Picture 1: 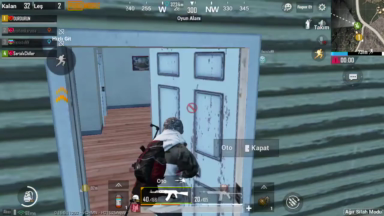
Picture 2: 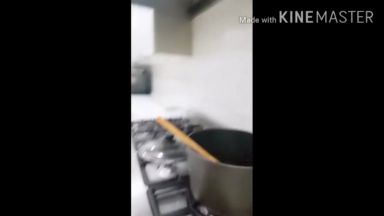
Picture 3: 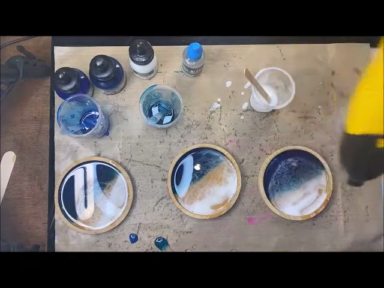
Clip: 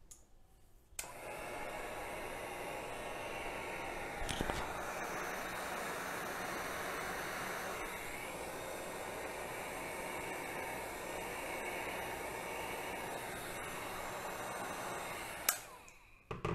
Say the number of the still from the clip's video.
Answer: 3